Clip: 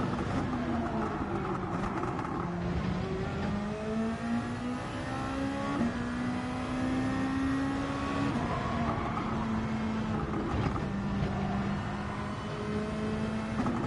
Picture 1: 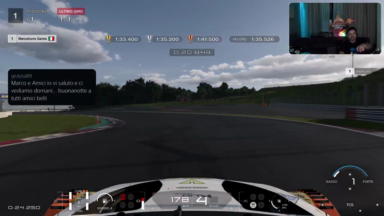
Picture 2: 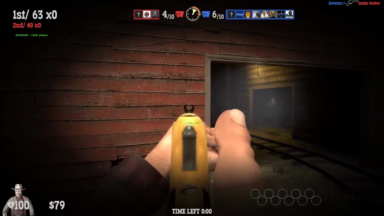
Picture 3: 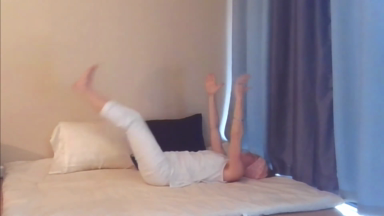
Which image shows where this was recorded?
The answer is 1